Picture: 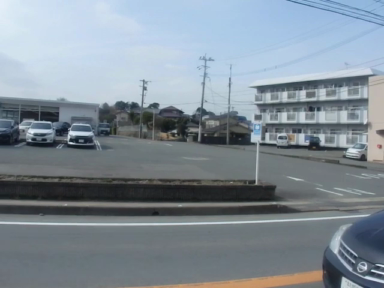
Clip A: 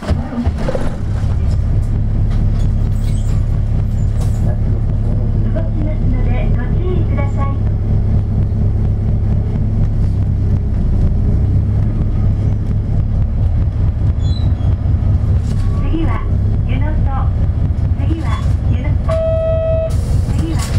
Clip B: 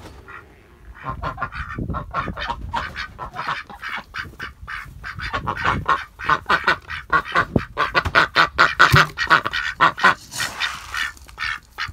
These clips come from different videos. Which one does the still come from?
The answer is A